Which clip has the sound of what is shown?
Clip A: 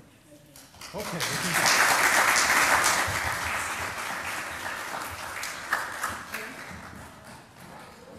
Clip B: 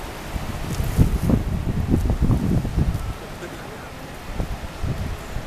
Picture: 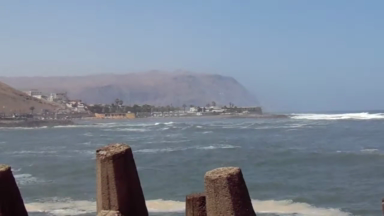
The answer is B